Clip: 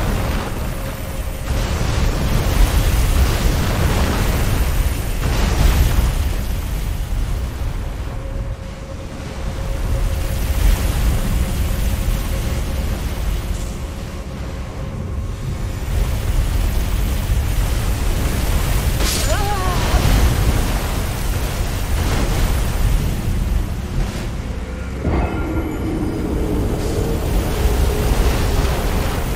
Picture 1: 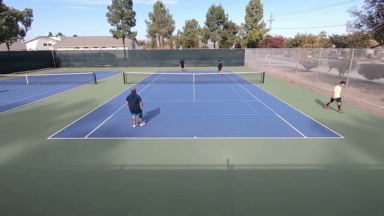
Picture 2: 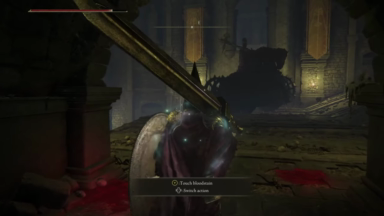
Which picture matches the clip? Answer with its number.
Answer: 2